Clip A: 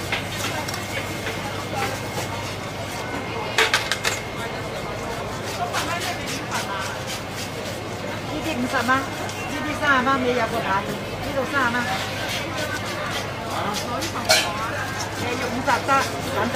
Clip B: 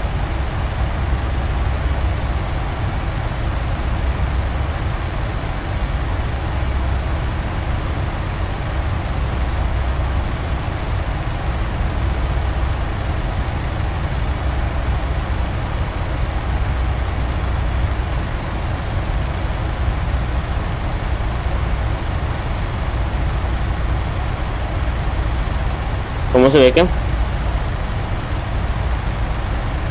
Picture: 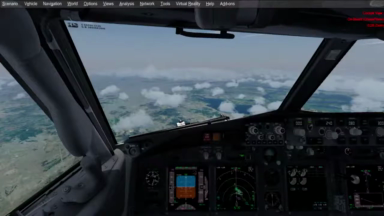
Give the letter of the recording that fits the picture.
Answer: B